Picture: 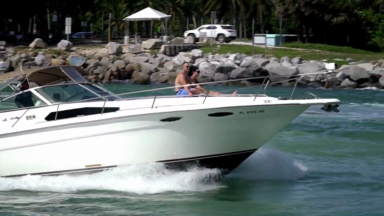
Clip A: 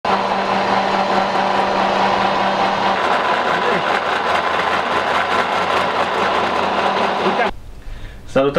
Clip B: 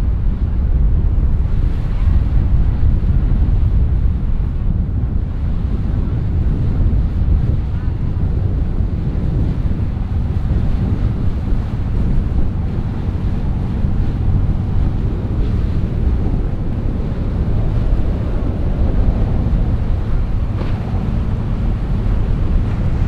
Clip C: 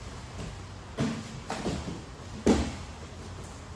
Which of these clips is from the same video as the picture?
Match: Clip B